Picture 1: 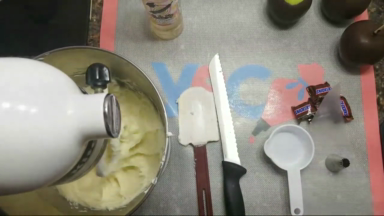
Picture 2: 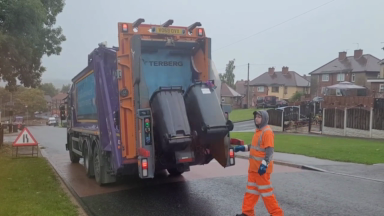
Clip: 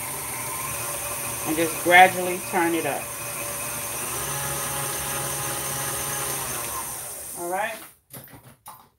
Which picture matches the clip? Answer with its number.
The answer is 1